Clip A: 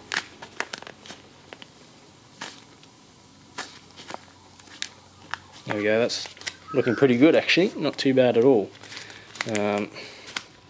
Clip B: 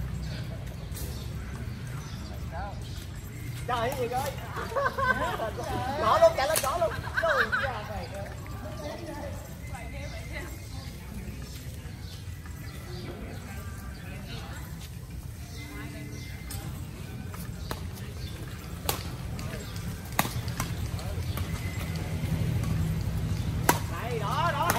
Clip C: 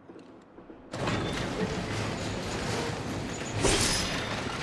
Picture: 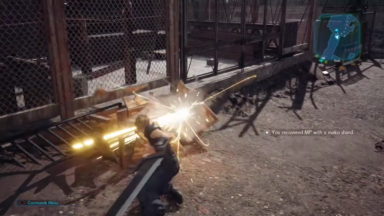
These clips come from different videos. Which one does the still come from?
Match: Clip C